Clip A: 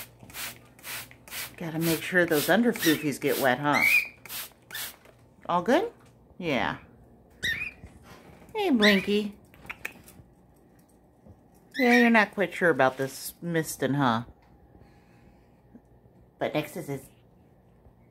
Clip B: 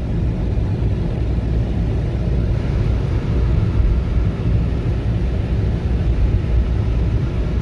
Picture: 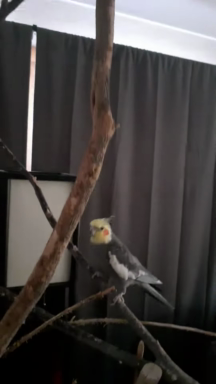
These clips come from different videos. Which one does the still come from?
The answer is A